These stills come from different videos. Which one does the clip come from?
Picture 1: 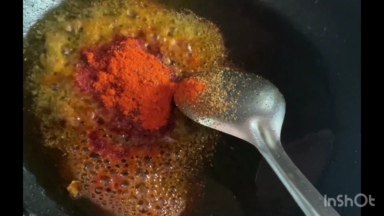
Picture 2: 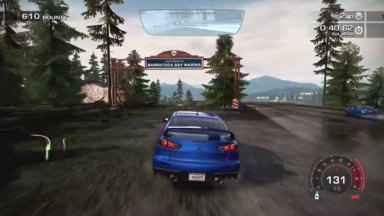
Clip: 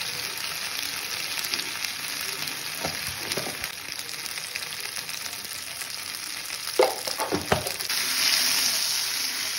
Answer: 1